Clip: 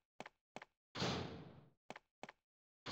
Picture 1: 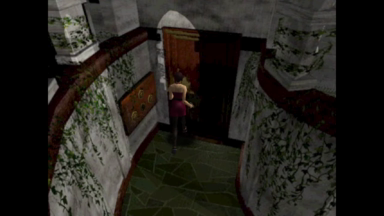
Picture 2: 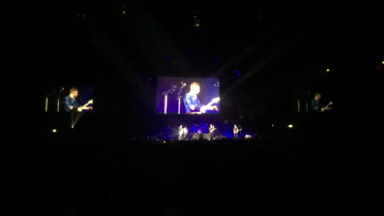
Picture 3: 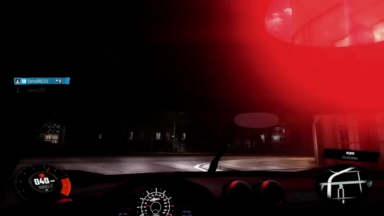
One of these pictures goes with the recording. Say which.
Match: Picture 1